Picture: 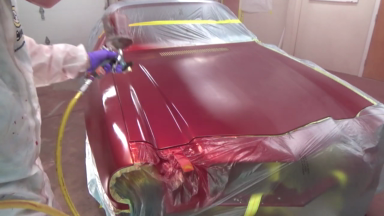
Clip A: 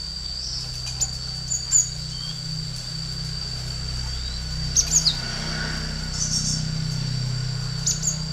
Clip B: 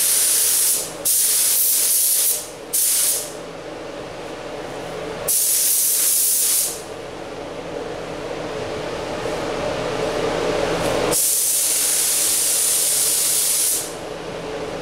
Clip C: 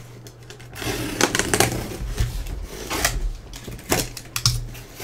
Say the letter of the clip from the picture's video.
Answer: B